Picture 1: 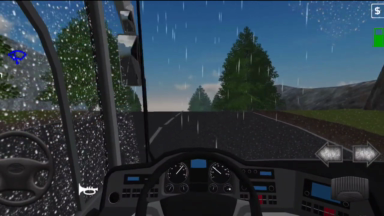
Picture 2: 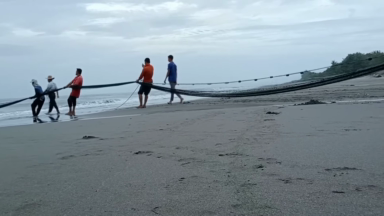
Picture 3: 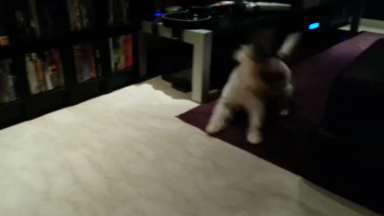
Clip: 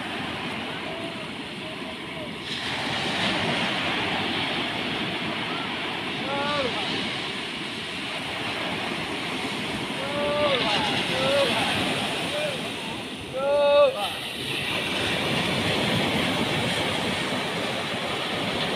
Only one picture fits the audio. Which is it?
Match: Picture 2